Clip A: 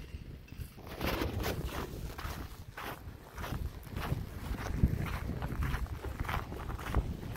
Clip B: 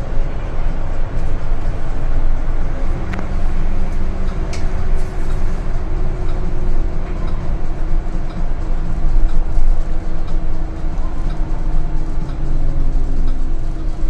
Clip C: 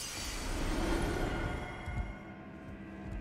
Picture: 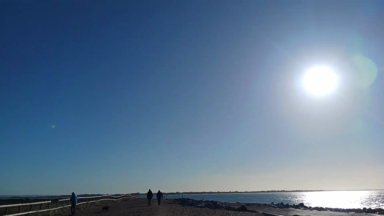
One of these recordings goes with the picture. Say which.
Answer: A